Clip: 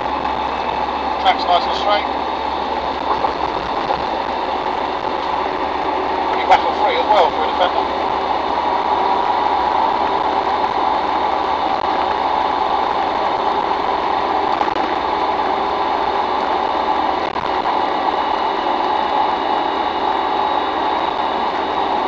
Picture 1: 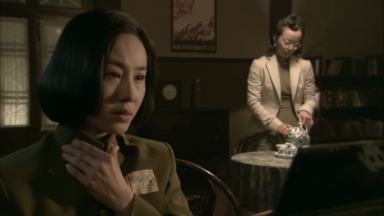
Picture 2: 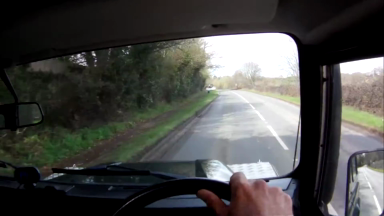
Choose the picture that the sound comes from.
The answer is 2